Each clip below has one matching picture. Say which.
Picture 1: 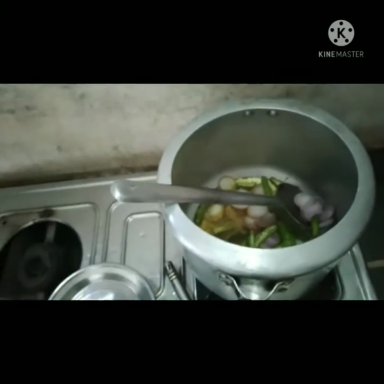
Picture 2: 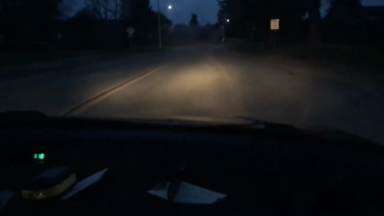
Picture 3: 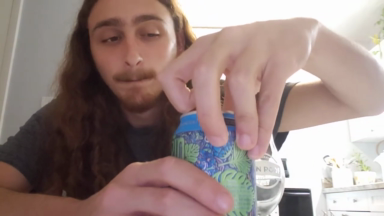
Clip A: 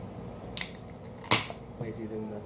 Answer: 3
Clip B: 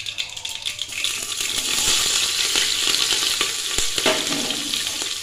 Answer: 1